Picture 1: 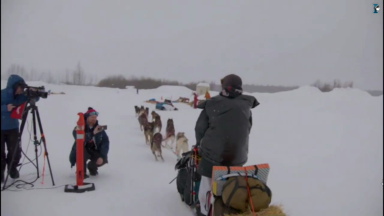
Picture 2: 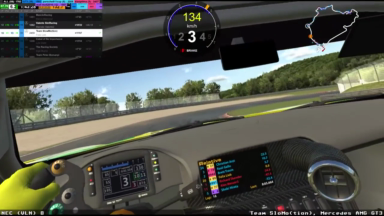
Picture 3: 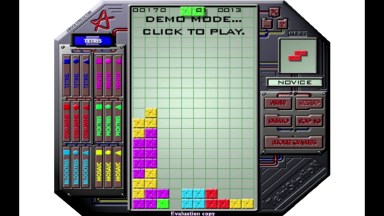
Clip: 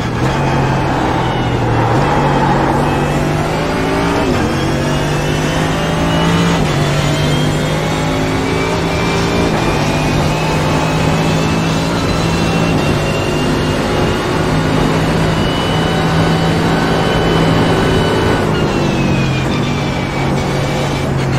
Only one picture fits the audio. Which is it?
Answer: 2